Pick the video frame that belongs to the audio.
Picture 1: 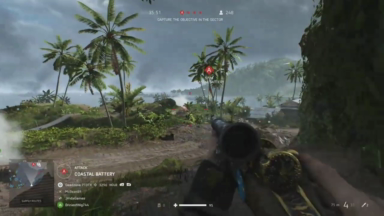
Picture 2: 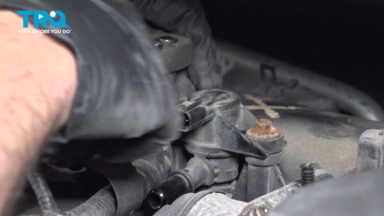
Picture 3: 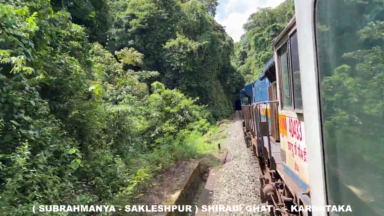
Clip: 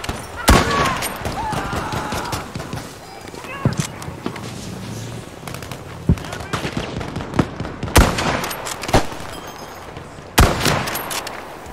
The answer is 1